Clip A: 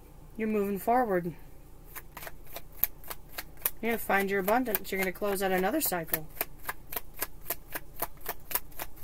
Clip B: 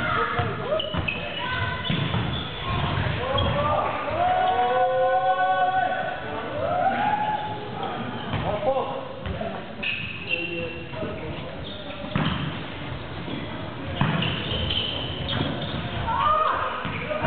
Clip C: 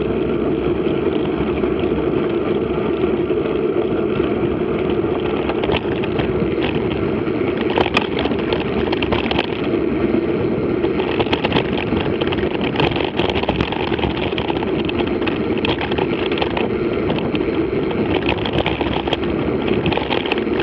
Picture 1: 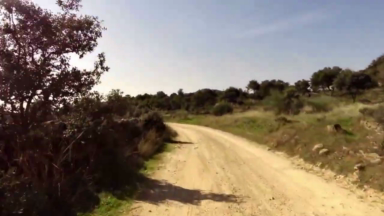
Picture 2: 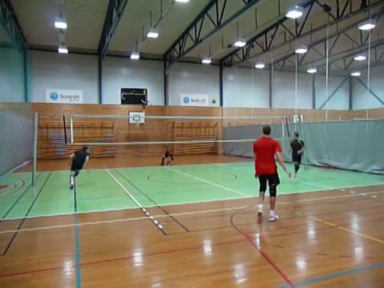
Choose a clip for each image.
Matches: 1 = C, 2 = B